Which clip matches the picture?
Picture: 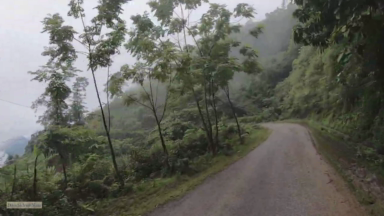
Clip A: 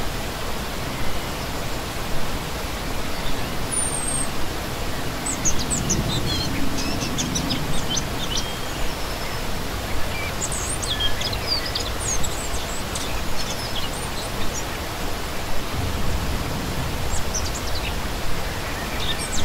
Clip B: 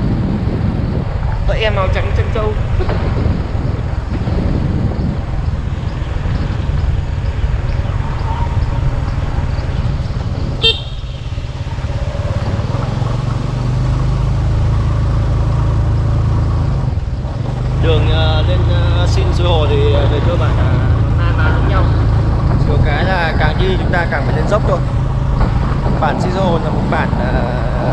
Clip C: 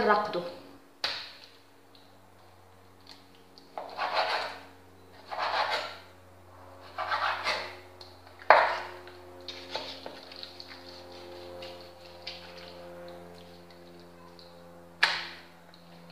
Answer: B